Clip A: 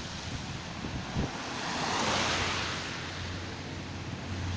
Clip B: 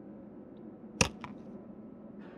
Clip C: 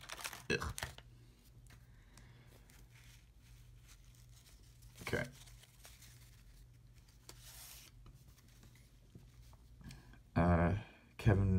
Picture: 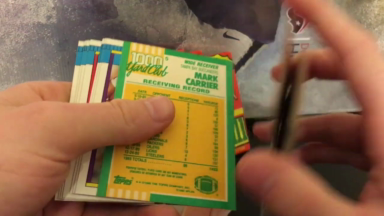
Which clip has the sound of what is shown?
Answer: C